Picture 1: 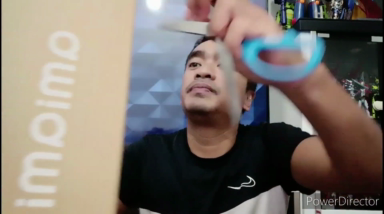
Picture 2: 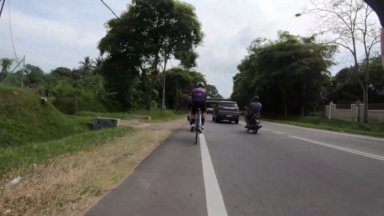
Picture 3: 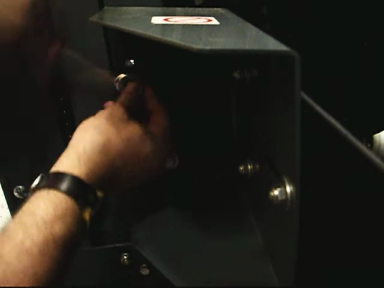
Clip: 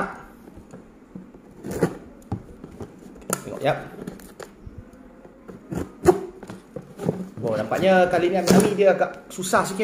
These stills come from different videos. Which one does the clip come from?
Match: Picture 1